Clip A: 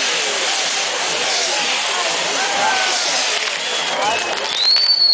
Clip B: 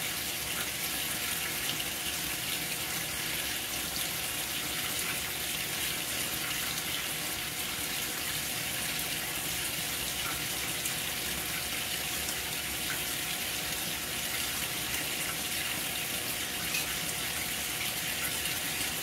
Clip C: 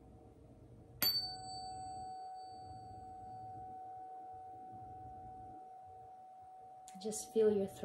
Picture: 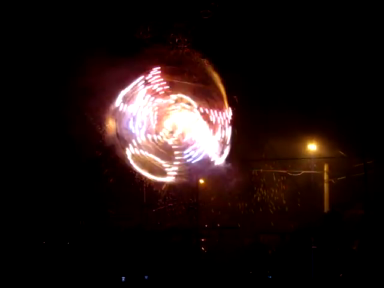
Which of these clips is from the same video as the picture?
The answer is A